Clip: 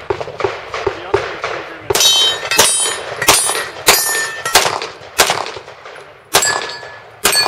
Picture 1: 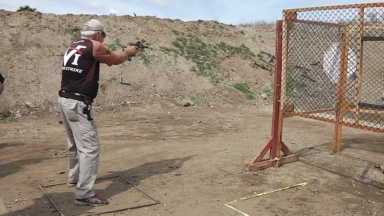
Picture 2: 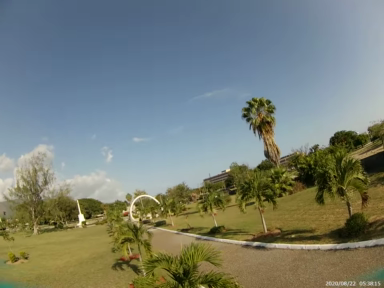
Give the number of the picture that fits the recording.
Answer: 1